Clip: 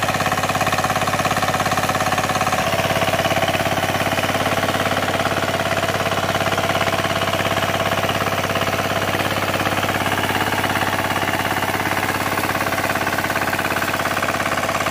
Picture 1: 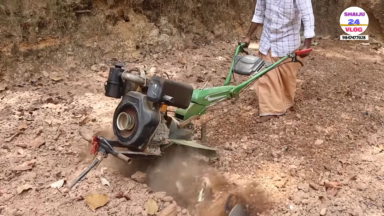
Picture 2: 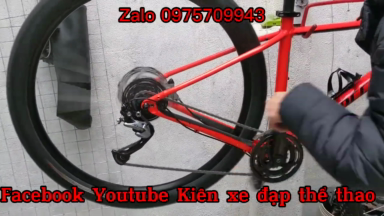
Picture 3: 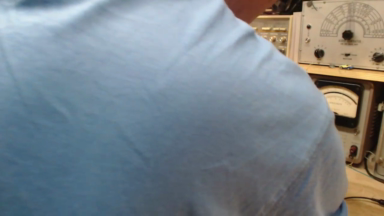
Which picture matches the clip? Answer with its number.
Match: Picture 1